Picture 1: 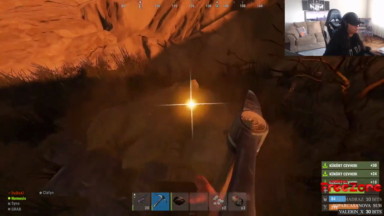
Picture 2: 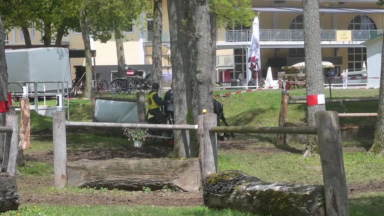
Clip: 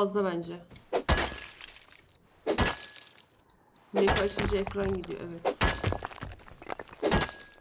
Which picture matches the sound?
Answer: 1